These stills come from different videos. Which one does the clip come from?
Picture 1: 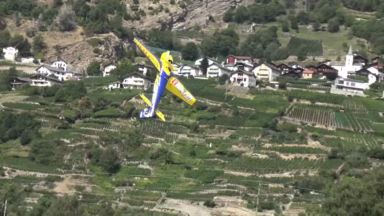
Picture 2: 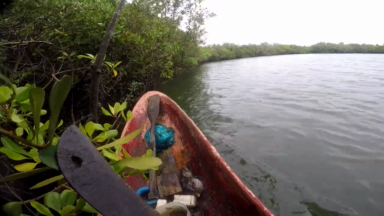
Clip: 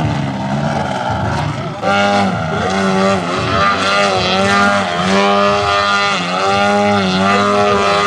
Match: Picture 1